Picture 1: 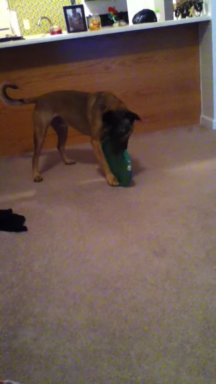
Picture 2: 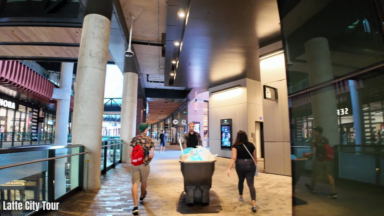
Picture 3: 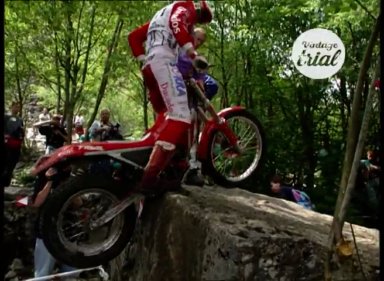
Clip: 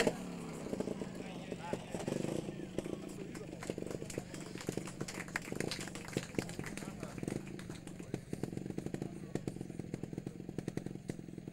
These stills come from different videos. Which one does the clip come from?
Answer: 3